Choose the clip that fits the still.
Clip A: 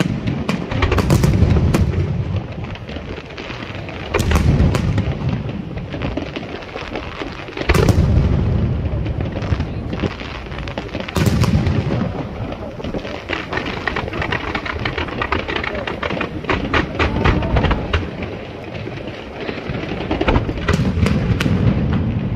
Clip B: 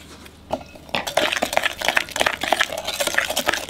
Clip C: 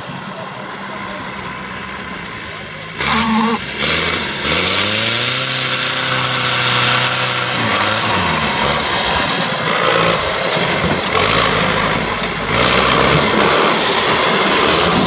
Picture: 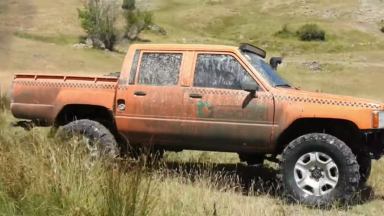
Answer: C